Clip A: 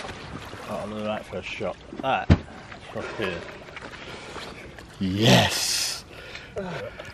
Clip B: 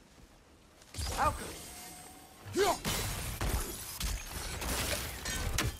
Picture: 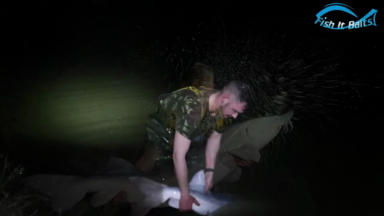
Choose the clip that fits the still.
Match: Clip A